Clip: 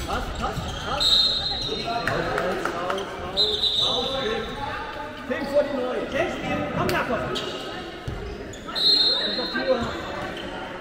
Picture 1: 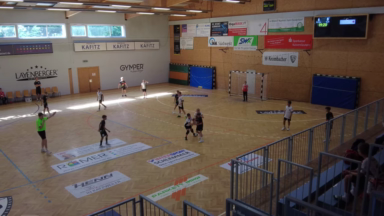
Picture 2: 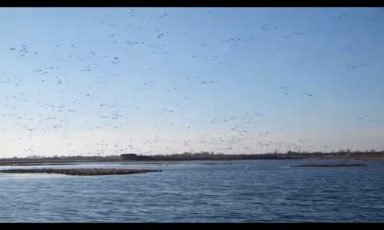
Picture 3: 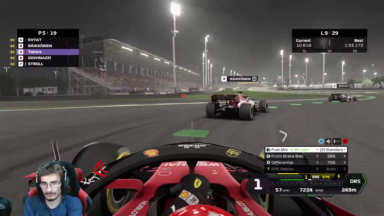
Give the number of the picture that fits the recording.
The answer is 1